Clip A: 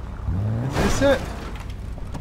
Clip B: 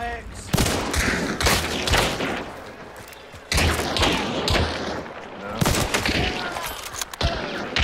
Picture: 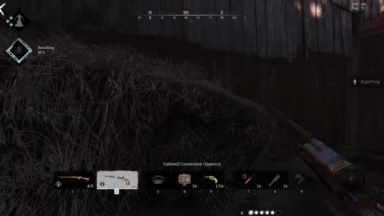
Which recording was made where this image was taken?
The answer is B